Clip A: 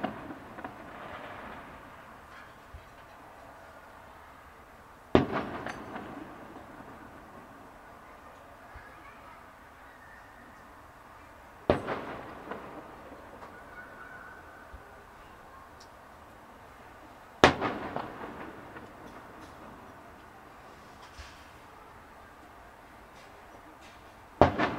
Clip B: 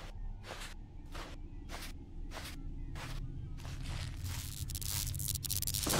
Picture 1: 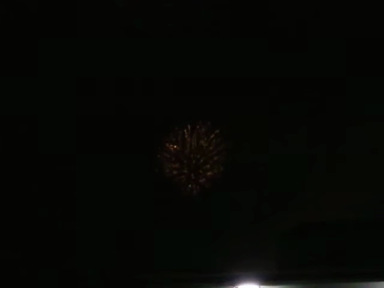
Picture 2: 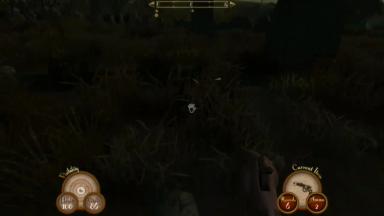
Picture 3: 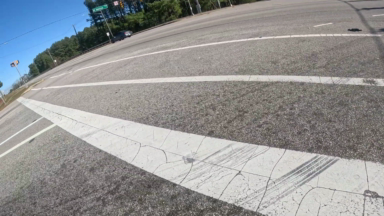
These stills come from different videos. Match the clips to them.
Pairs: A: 1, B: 2